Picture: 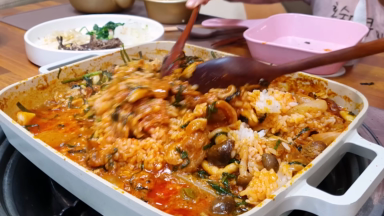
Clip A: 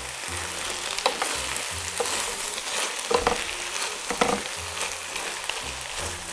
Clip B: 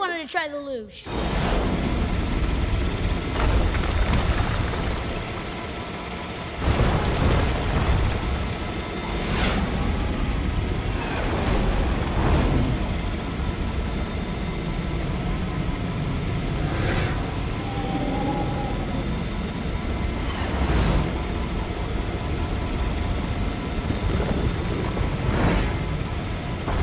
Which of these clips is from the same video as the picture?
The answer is A